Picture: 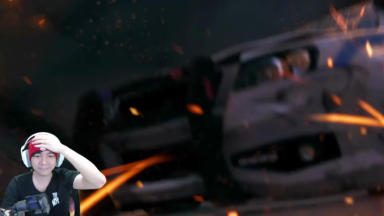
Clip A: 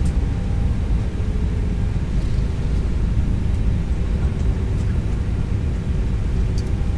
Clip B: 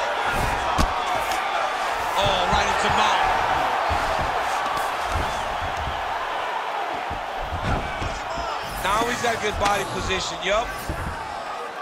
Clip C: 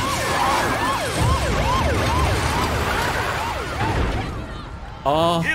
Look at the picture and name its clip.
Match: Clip C